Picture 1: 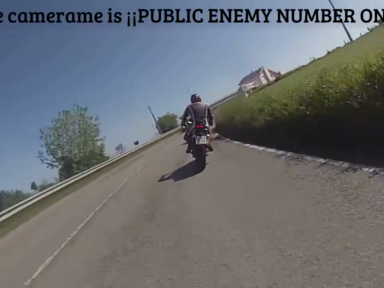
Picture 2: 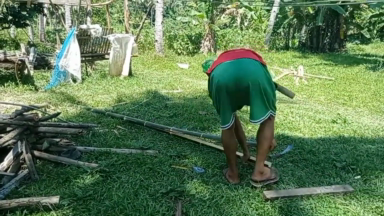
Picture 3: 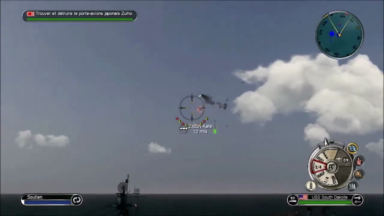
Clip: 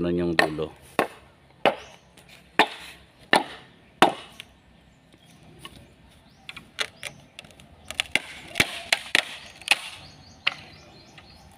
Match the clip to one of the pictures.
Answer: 2